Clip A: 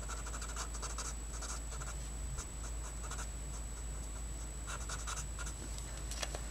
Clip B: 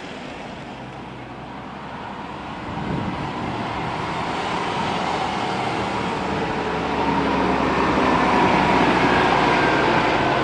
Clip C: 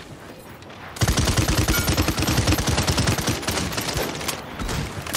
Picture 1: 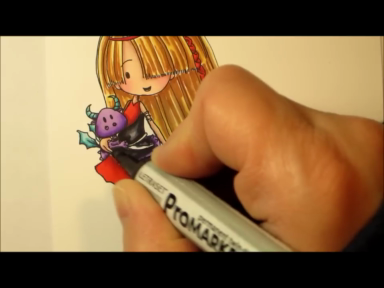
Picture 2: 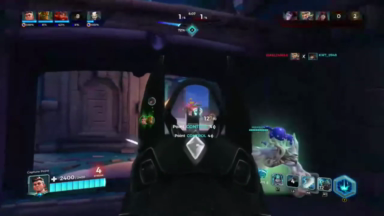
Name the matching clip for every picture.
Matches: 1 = A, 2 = C